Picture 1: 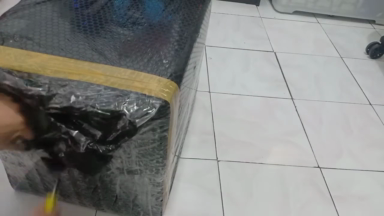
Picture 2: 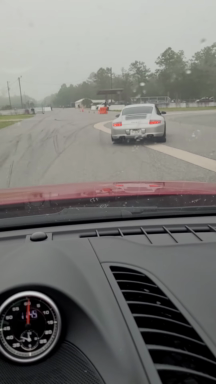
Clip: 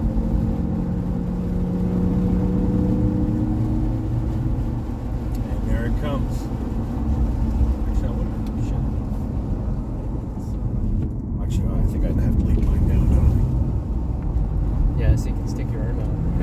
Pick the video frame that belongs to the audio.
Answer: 2